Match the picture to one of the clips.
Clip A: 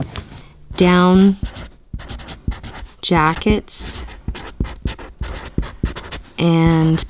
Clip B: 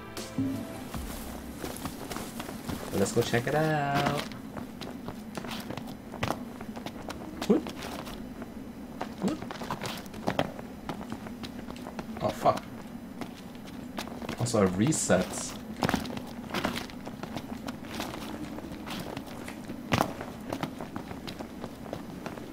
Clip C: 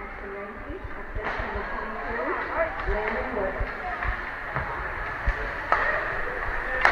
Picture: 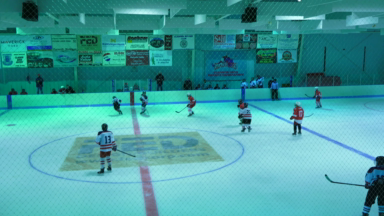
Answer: C